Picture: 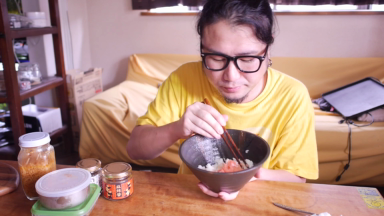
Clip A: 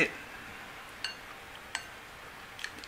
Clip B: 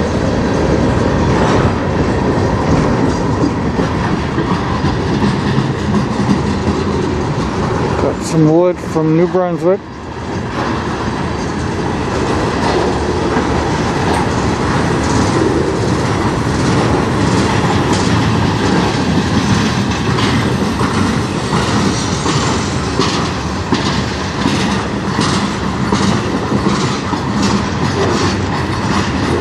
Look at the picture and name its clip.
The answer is A